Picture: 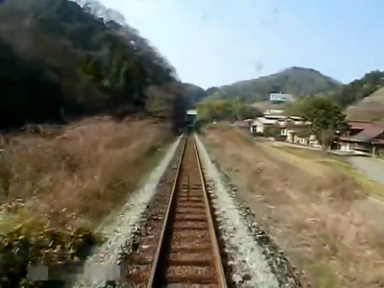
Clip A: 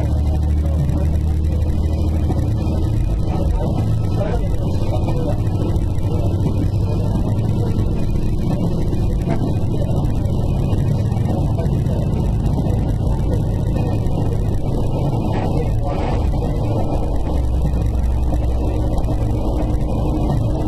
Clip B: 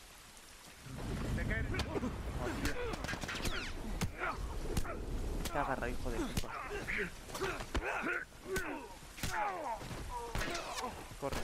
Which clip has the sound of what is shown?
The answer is A